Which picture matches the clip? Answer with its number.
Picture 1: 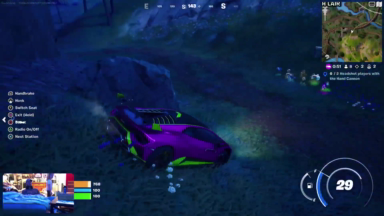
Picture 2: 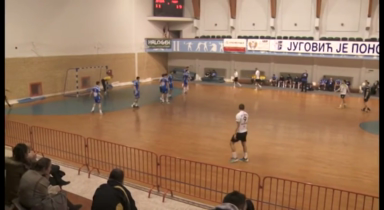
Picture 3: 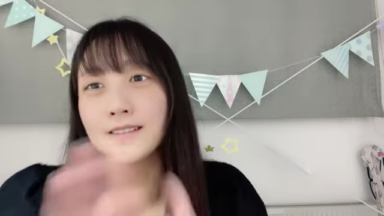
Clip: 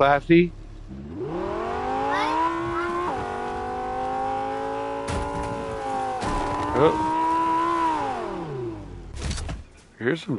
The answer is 1